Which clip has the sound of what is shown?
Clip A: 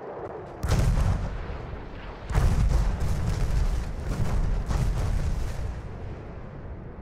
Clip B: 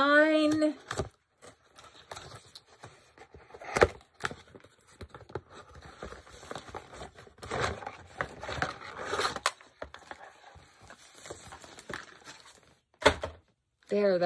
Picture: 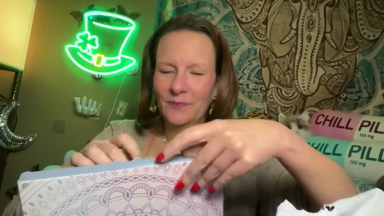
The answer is B